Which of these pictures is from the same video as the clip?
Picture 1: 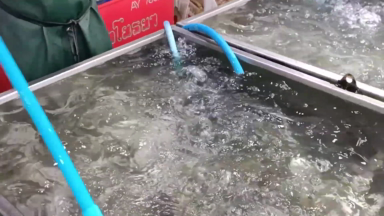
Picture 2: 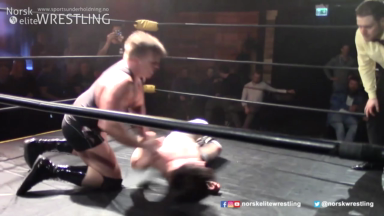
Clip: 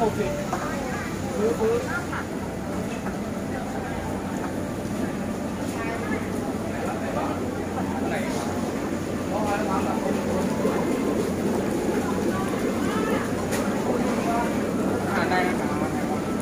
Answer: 1